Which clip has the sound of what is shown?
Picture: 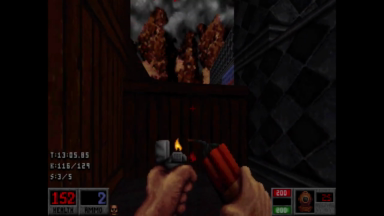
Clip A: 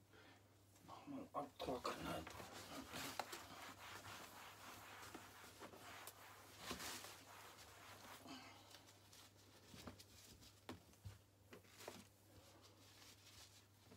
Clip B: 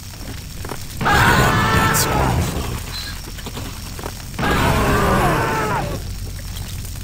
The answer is B